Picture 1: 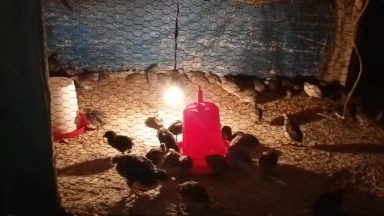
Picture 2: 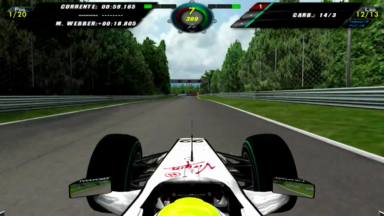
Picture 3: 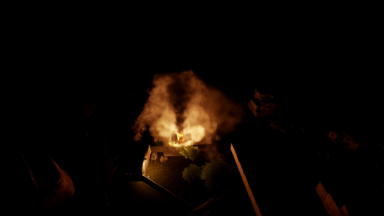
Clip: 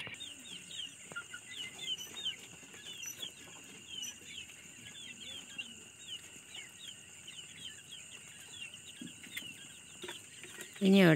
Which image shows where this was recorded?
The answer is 1